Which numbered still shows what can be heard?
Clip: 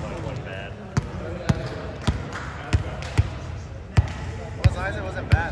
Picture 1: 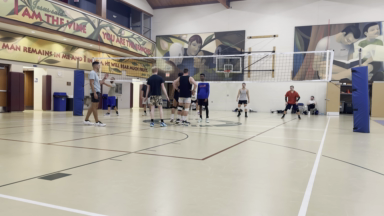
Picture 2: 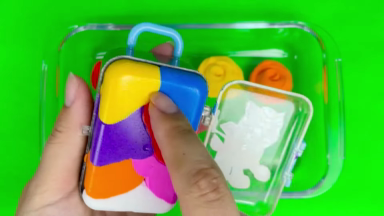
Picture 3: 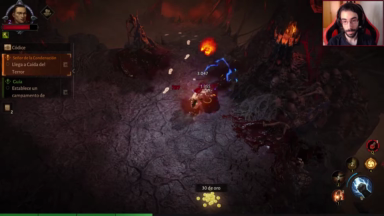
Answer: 1